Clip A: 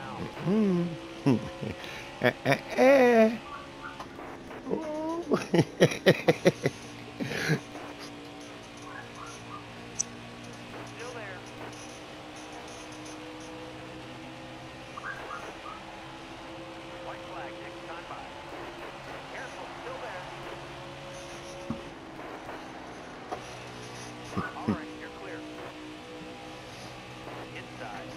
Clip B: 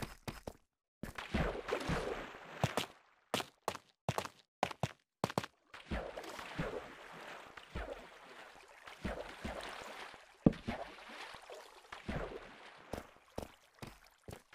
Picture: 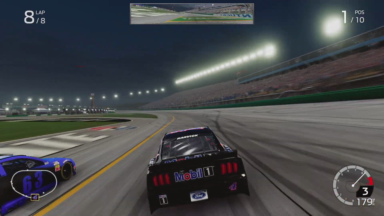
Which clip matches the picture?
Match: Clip A